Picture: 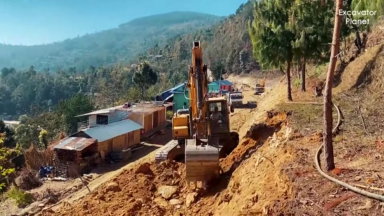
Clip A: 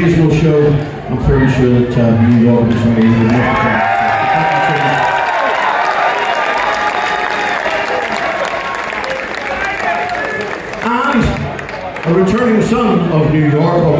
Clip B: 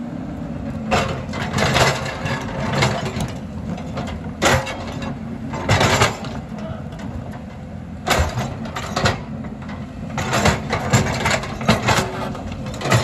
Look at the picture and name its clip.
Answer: B